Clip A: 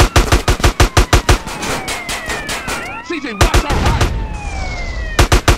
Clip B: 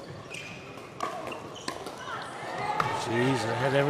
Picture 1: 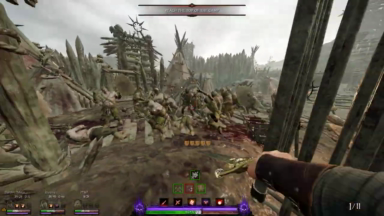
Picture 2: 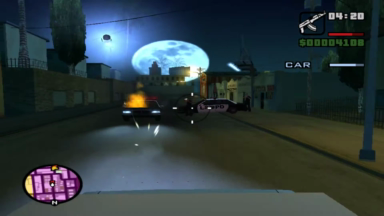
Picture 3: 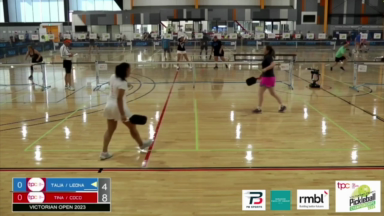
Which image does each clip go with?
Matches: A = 2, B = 3